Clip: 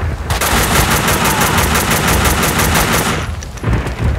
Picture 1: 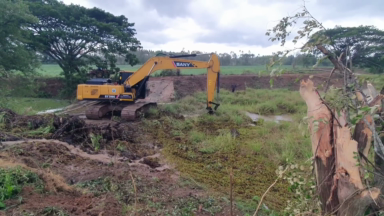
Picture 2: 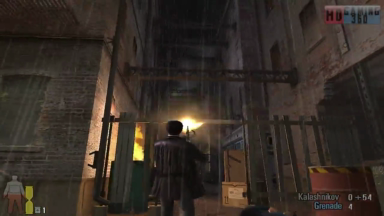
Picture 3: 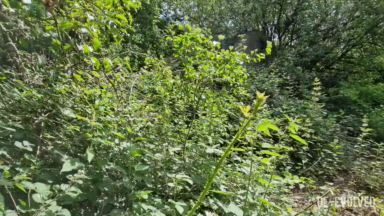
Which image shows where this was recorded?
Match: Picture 2